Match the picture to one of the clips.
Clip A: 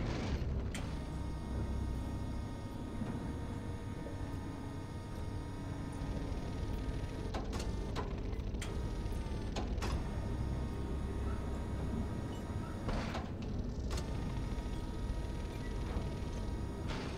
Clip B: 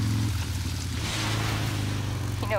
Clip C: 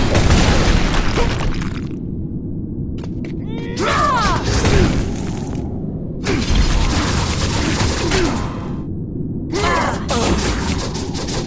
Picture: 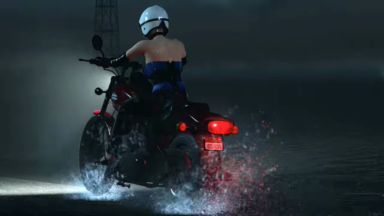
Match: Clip B